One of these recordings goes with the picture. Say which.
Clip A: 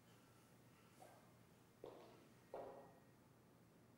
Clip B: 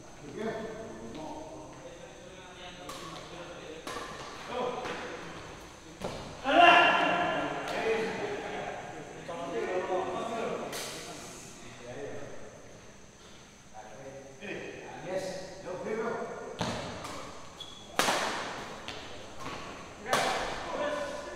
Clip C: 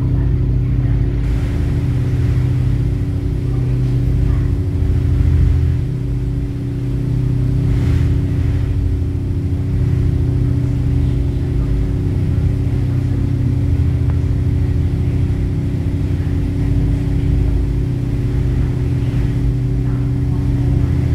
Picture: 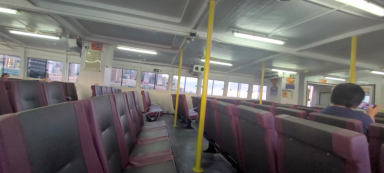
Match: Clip C